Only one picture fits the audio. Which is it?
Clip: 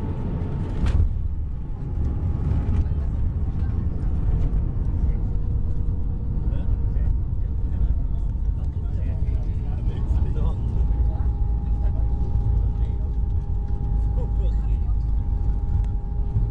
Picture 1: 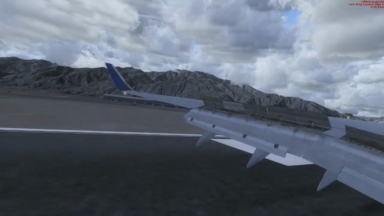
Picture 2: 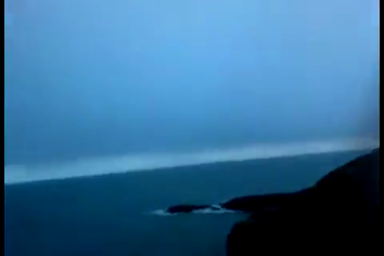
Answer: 1